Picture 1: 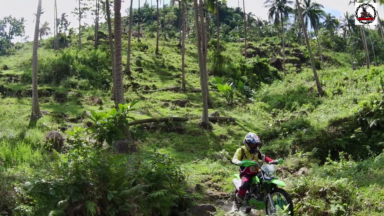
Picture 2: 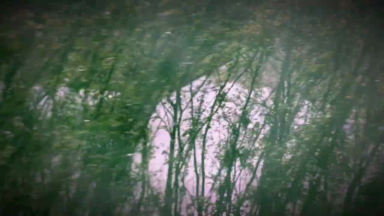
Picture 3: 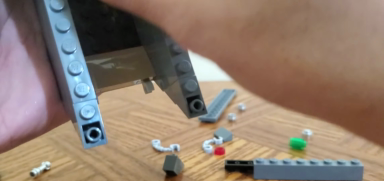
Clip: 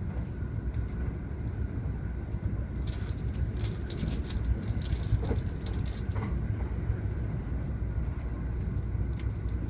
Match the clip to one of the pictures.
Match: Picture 2